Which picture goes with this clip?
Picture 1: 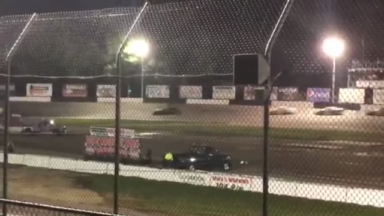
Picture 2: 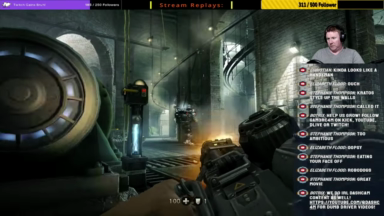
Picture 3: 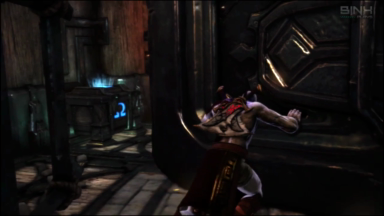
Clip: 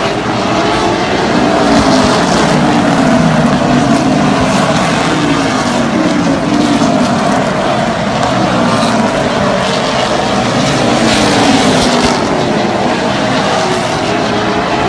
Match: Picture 1